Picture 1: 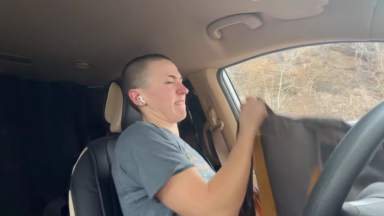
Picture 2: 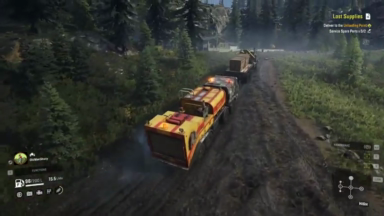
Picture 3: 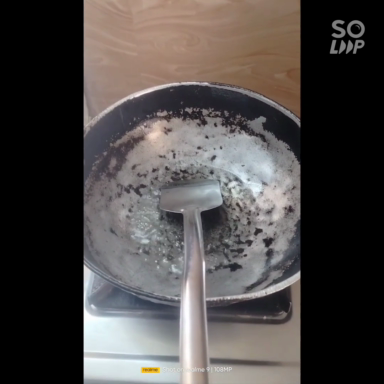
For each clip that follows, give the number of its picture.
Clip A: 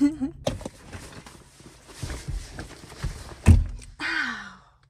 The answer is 1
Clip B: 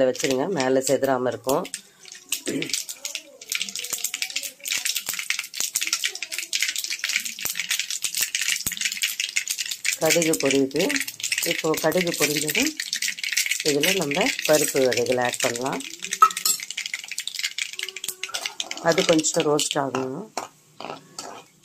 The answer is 3